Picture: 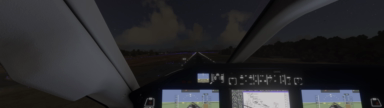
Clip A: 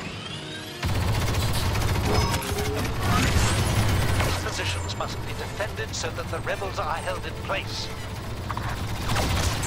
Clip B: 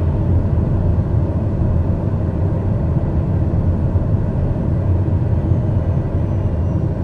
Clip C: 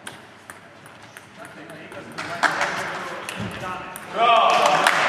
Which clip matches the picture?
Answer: B